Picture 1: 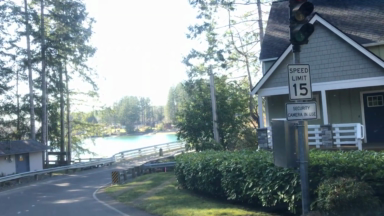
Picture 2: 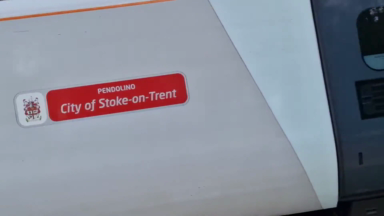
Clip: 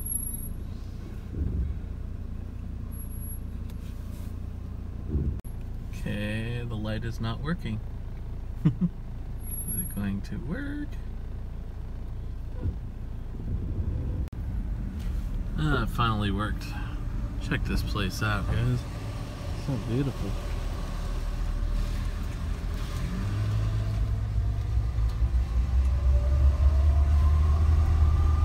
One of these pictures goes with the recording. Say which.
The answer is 1